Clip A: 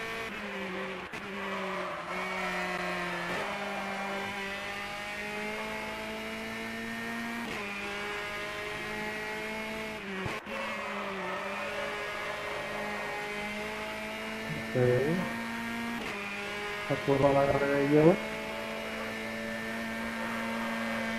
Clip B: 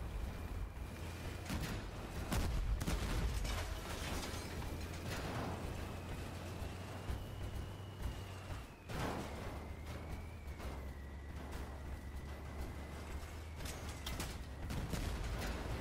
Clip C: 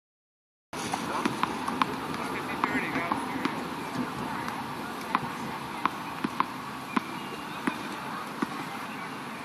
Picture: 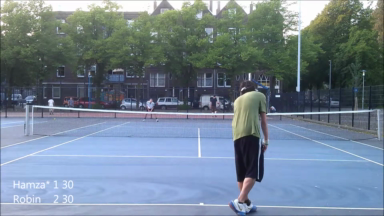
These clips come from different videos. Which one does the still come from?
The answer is C